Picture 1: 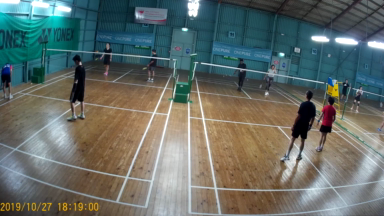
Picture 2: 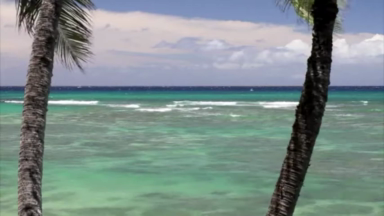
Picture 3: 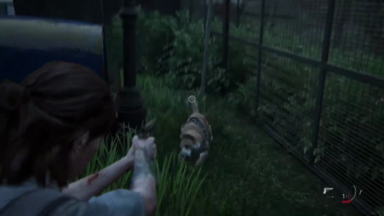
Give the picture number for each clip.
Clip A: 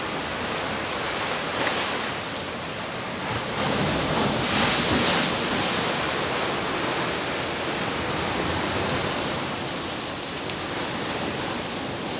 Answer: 2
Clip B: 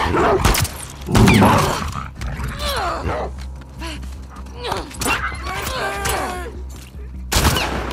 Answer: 3